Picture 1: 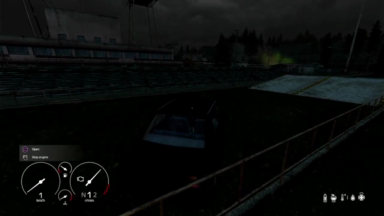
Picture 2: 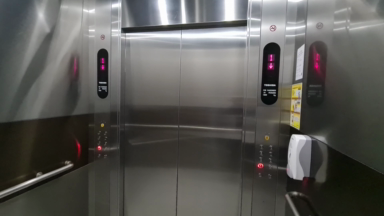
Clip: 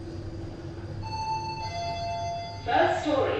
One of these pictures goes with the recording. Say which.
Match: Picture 2